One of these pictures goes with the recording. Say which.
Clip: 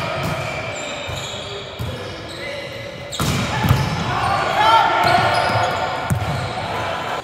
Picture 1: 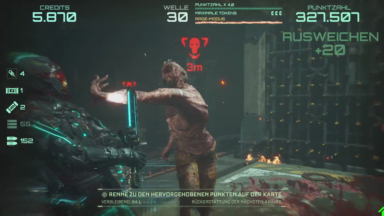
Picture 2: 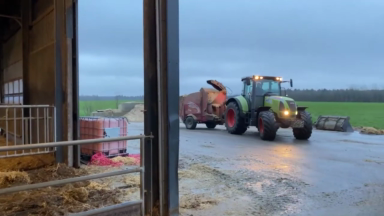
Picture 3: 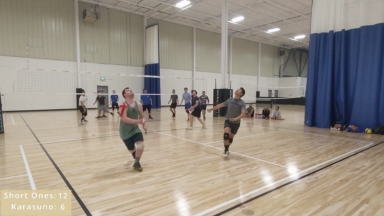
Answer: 3